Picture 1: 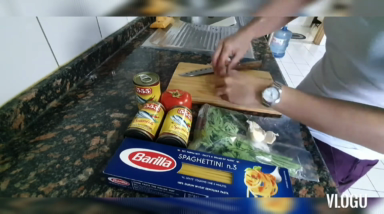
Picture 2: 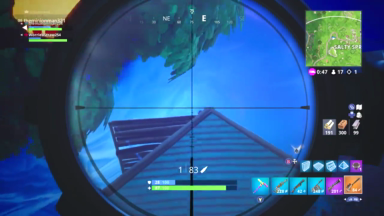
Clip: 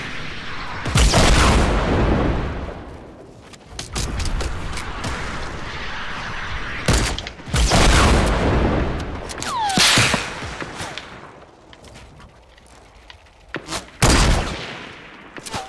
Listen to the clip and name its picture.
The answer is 2